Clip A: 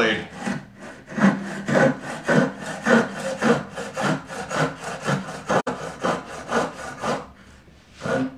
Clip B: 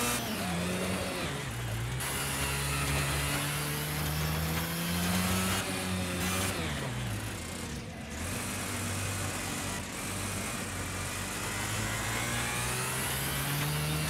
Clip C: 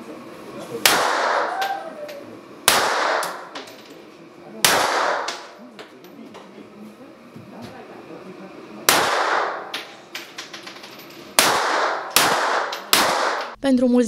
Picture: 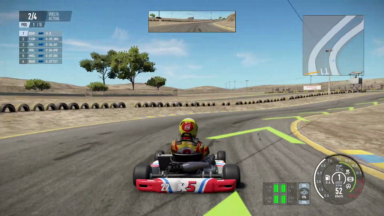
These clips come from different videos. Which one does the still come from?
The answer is B